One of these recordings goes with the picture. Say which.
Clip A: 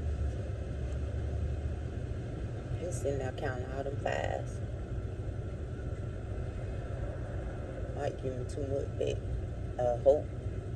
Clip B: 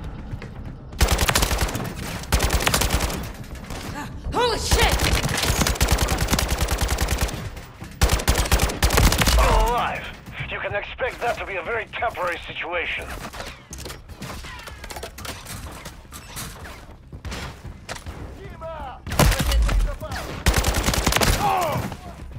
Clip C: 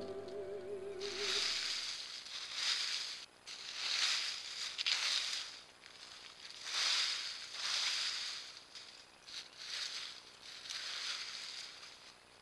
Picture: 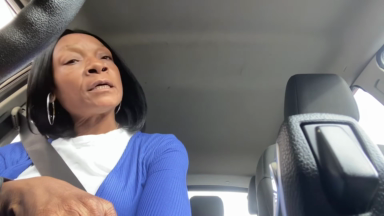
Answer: A